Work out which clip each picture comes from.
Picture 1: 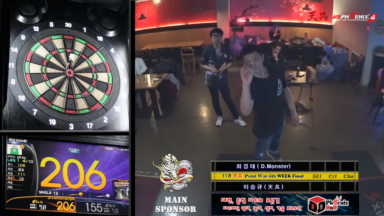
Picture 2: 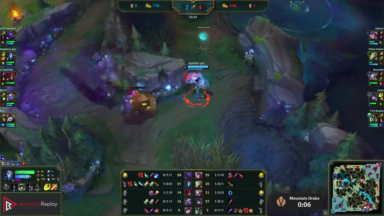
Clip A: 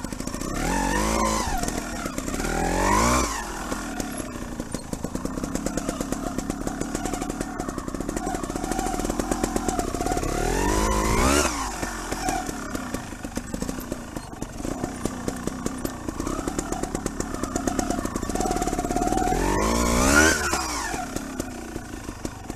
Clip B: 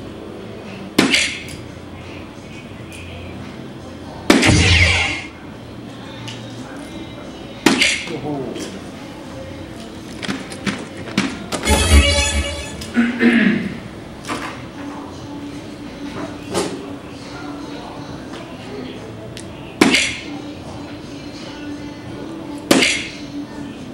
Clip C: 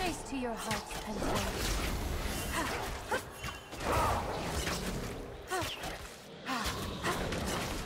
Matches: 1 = B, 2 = C